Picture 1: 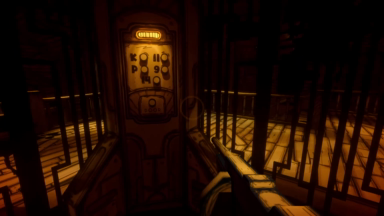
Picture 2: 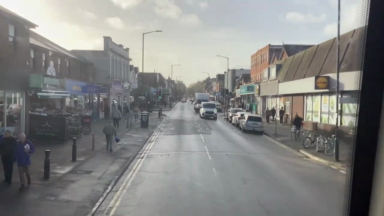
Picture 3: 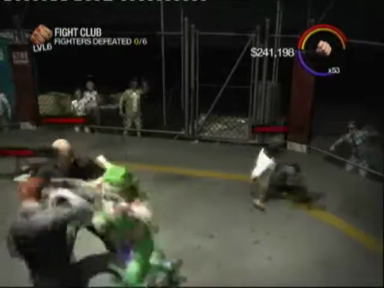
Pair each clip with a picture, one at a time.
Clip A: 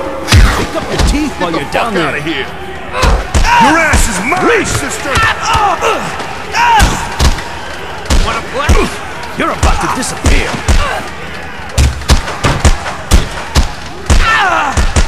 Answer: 3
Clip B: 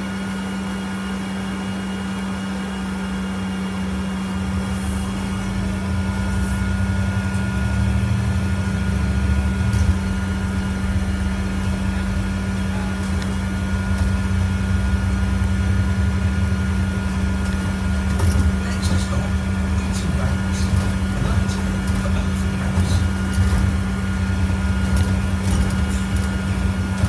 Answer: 2